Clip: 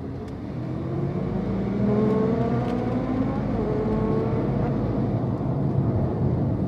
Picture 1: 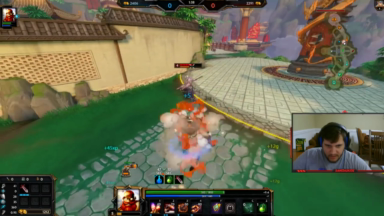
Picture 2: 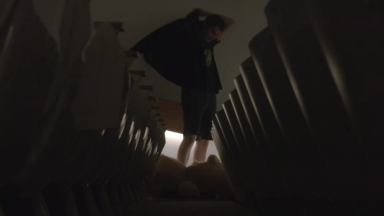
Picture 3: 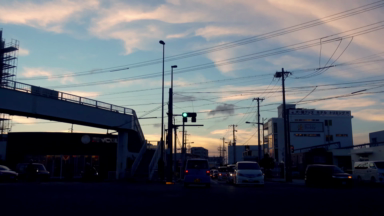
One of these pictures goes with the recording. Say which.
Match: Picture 3